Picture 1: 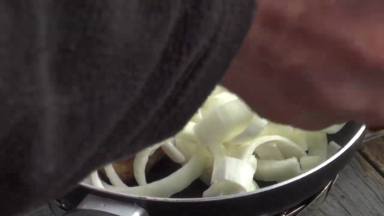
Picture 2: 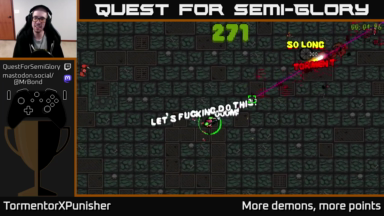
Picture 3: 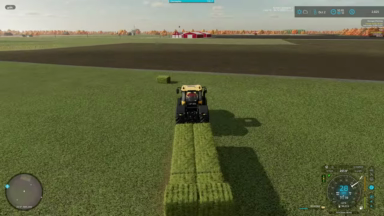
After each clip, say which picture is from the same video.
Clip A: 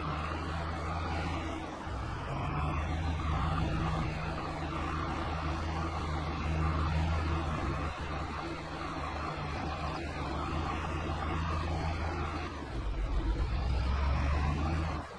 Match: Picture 3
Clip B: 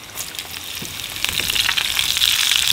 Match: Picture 1